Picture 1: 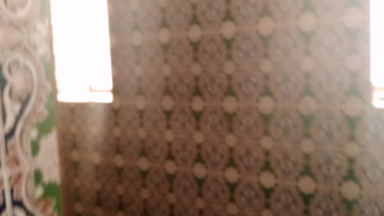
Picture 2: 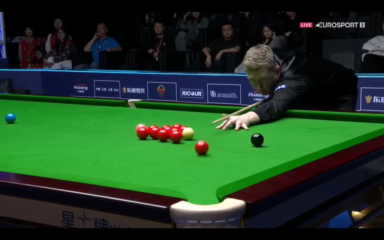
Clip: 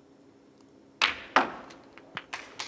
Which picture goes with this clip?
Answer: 2